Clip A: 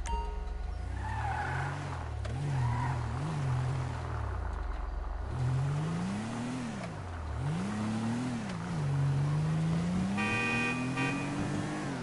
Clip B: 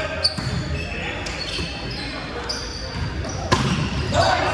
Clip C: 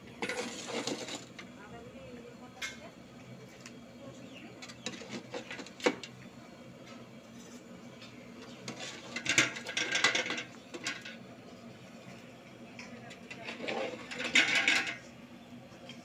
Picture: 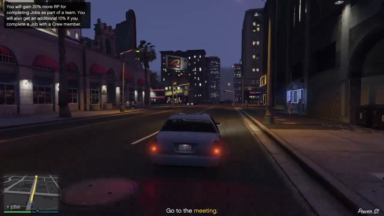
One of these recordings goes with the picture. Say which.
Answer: A